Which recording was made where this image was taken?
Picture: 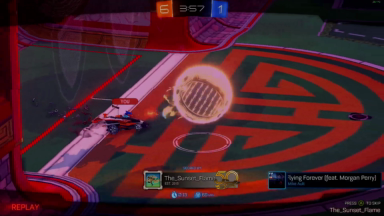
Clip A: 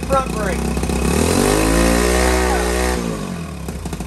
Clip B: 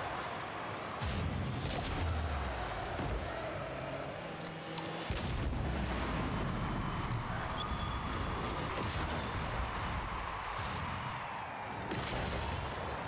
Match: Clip B